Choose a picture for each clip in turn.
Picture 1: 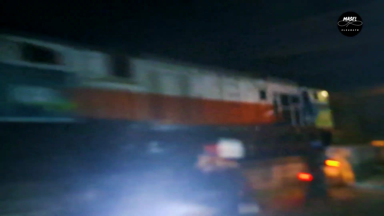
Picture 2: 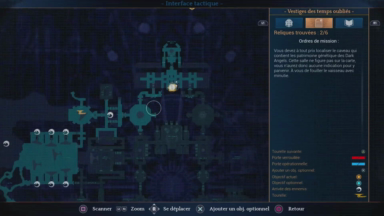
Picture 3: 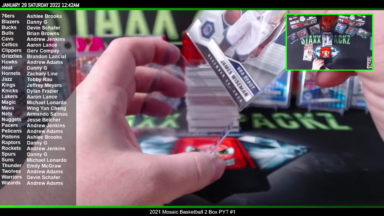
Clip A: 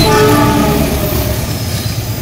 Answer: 1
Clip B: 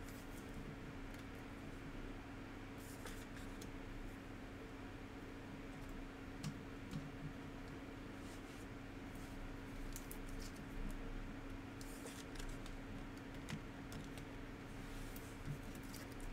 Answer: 3